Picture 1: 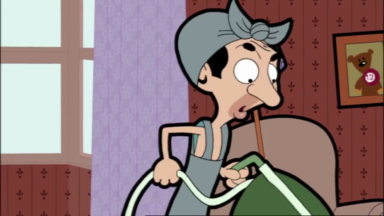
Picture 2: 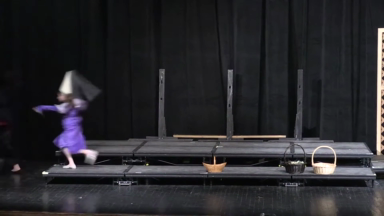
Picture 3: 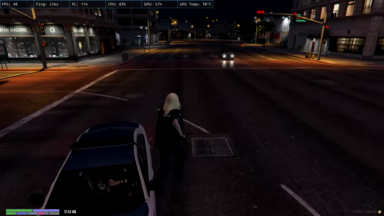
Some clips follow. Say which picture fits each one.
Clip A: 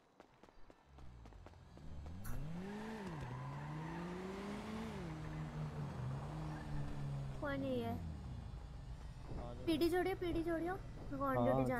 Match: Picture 3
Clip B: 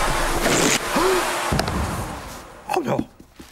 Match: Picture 1